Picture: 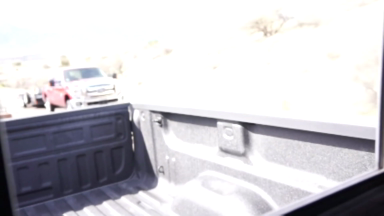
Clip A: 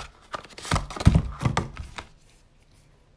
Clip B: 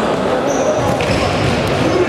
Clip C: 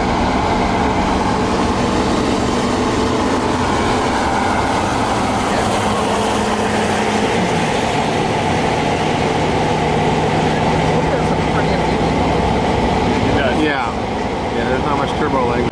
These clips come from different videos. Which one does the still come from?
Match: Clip C